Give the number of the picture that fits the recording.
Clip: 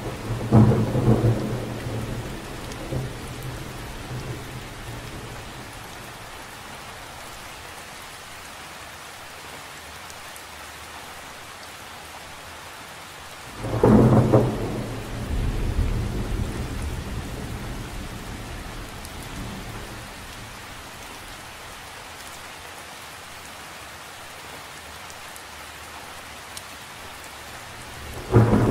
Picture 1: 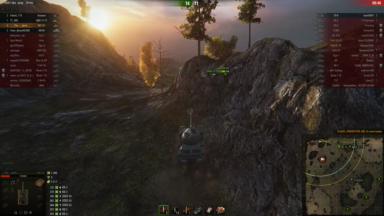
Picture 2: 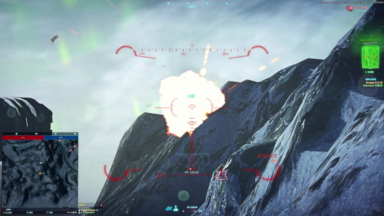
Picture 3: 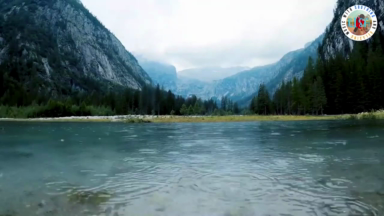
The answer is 3